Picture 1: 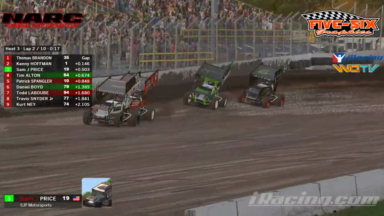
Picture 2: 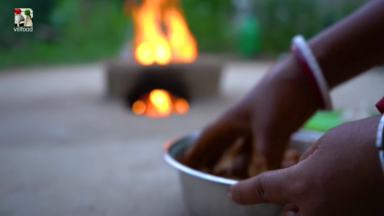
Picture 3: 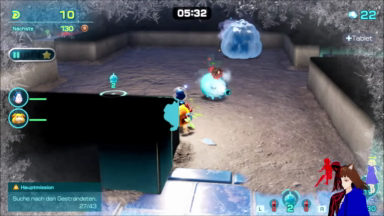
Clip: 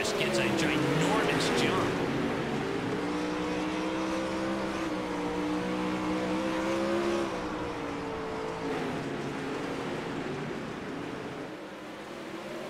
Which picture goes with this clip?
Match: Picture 1